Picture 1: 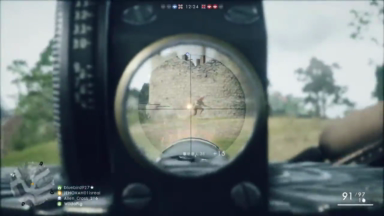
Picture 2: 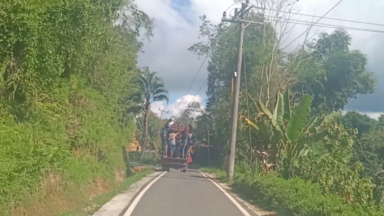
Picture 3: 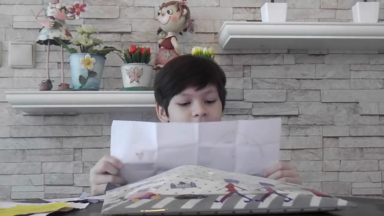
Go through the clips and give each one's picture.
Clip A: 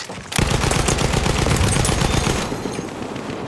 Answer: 1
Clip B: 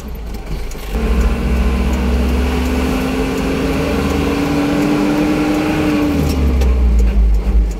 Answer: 2